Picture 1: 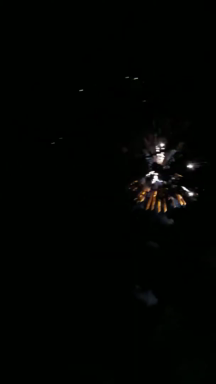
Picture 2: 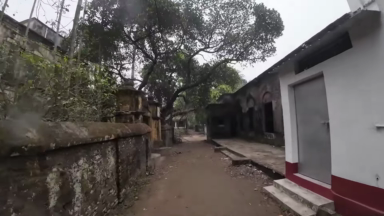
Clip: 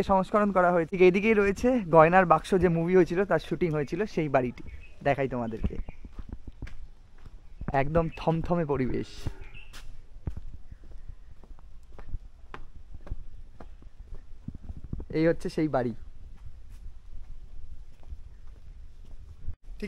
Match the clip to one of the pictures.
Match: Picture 2